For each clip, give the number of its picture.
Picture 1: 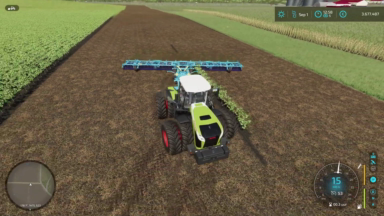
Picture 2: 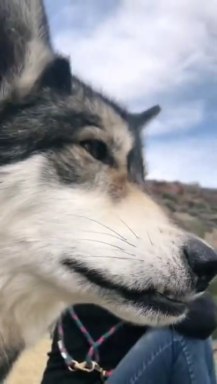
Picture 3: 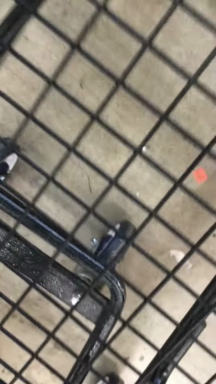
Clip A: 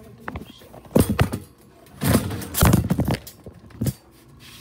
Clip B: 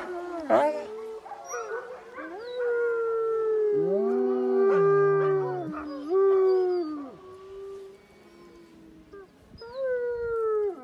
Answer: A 3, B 2